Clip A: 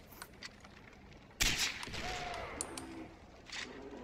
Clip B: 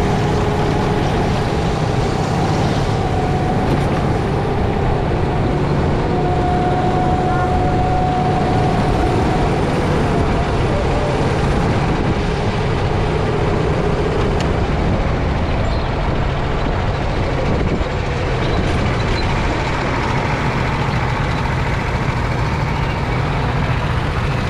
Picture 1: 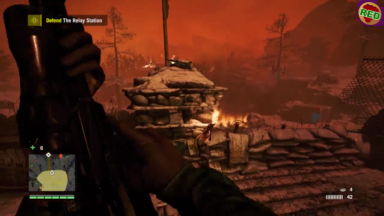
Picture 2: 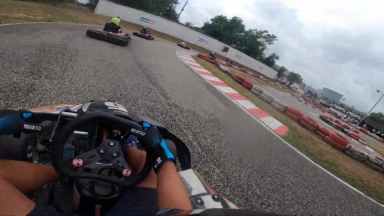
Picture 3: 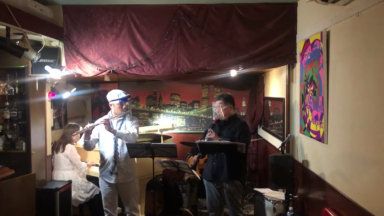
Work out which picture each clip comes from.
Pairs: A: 1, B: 2